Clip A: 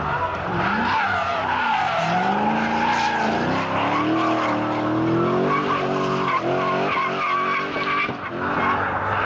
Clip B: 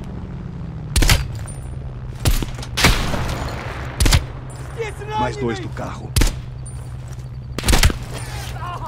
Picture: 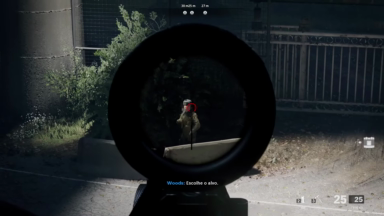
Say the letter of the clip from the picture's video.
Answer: B